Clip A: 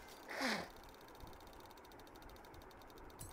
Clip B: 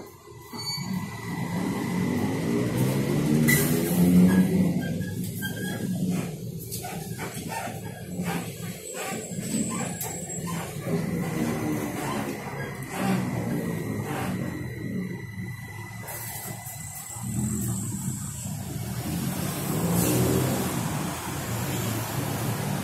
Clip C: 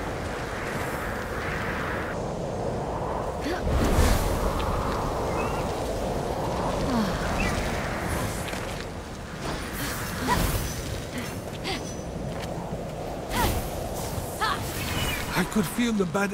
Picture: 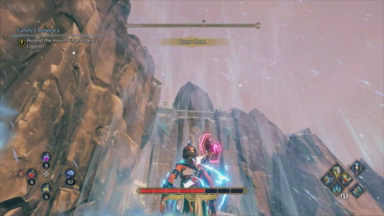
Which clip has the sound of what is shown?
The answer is C